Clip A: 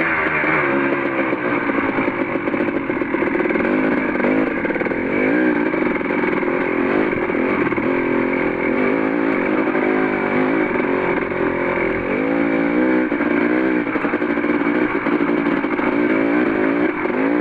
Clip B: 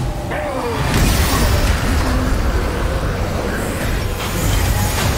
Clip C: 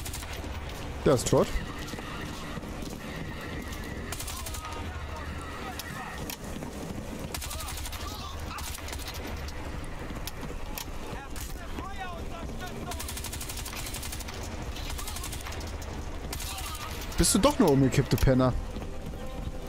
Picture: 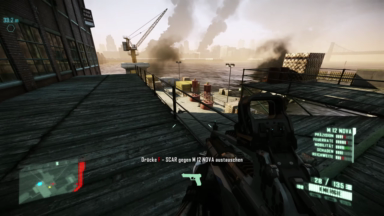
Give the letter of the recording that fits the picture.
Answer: C